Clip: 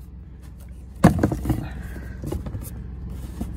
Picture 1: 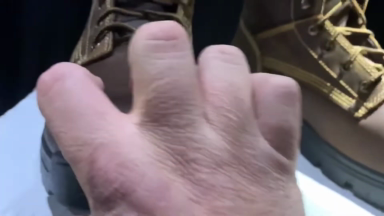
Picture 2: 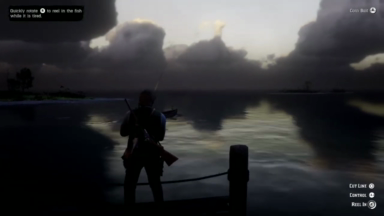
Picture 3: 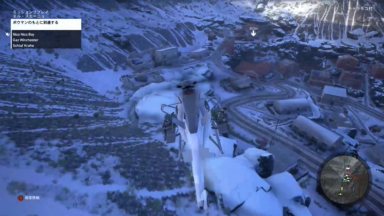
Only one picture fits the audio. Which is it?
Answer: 1